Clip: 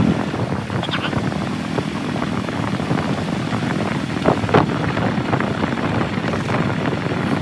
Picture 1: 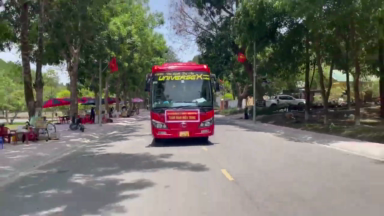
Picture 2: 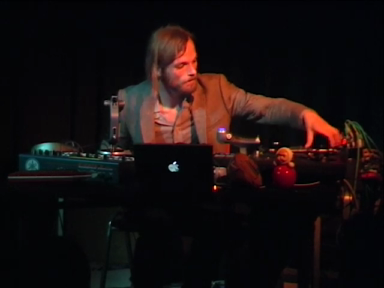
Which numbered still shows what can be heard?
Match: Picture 1